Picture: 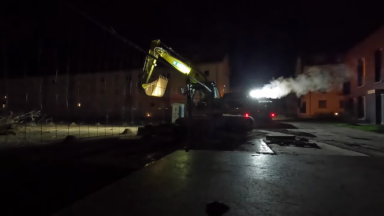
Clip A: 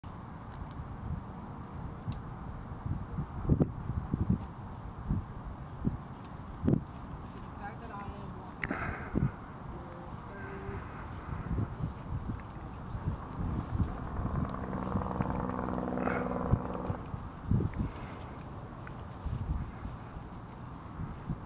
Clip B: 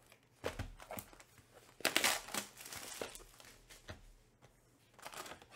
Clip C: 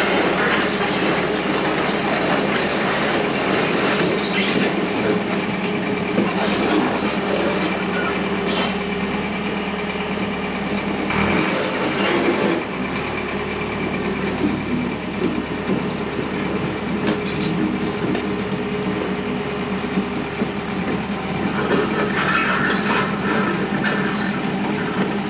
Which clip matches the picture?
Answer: C